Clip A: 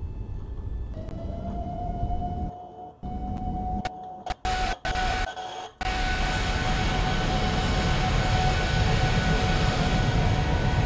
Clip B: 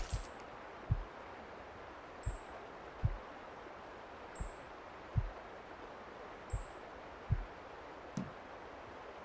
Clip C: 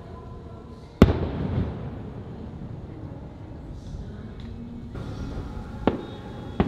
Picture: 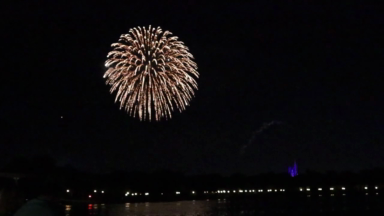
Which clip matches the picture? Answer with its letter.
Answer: C